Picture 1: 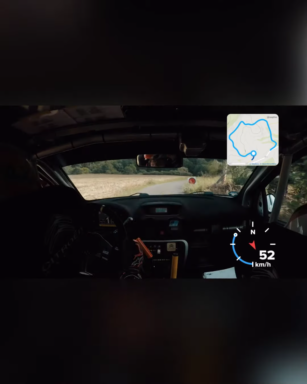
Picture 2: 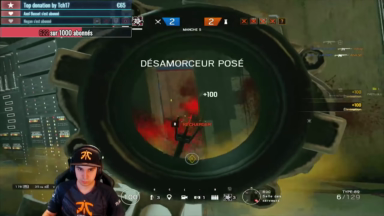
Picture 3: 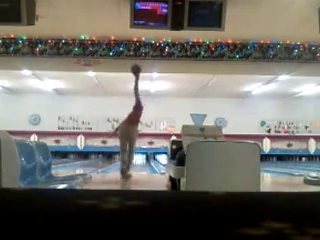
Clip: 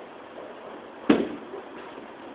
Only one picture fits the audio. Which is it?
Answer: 3